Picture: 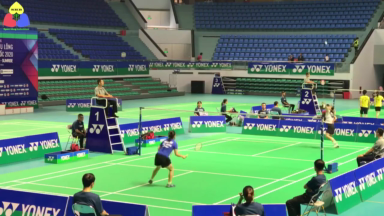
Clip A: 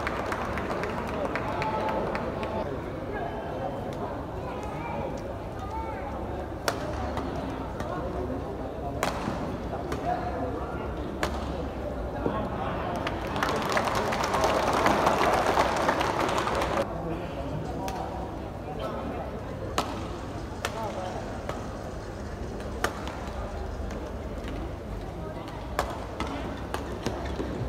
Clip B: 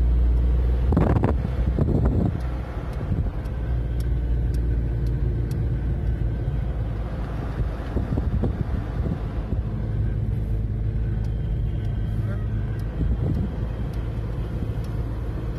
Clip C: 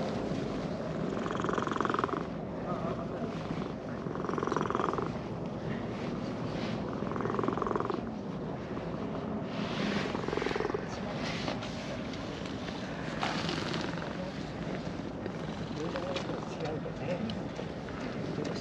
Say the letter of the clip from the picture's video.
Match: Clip A